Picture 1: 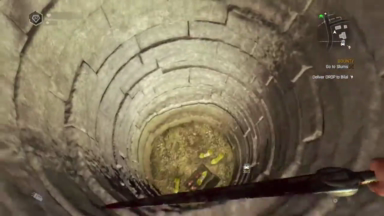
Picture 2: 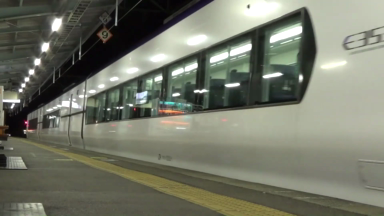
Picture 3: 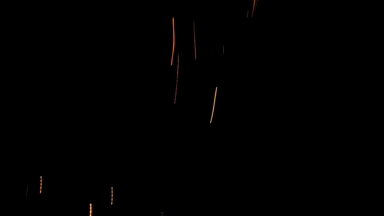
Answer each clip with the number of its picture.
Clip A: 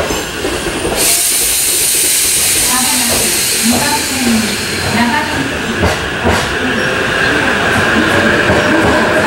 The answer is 2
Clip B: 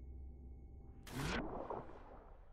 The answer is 1